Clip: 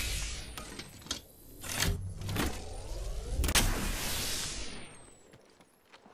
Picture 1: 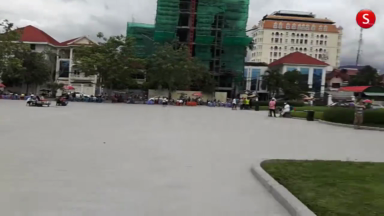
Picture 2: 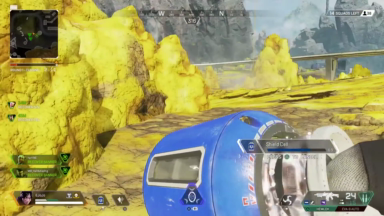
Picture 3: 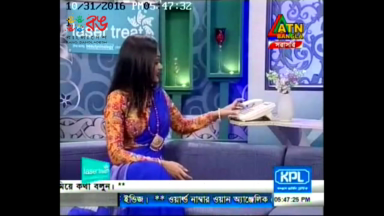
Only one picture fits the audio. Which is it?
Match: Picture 2